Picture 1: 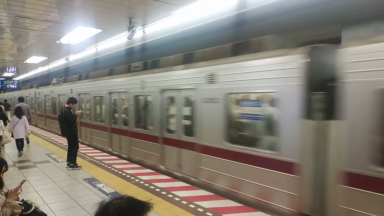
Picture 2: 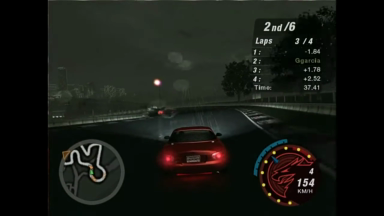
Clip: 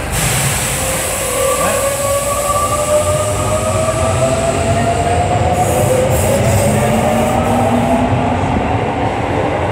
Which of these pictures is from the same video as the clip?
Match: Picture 1